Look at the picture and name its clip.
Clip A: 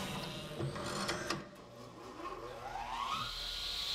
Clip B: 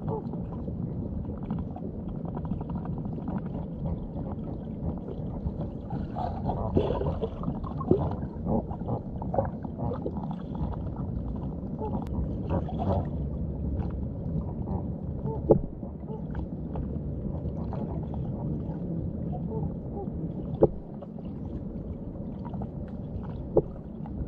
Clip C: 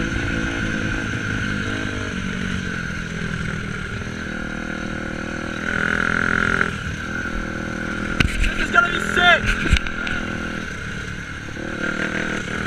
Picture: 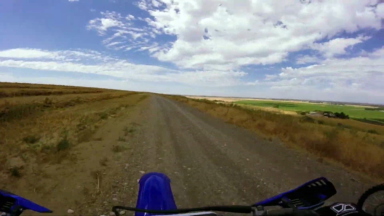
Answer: C